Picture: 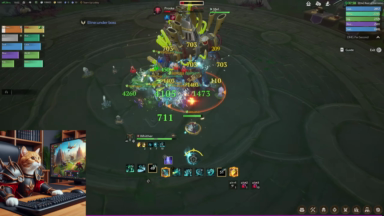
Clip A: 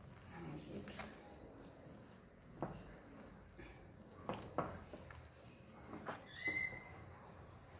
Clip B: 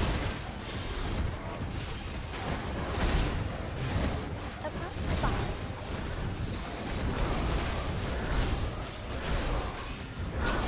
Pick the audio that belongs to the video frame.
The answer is B